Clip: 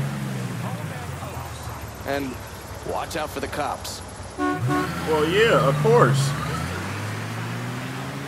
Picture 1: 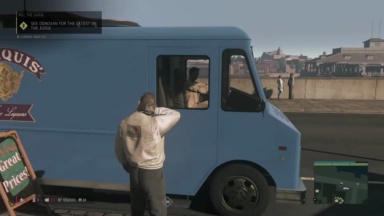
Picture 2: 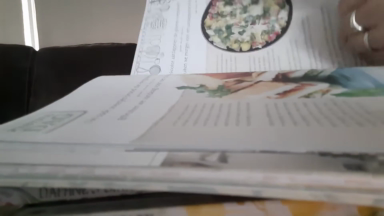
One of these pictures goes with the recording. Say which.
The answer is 1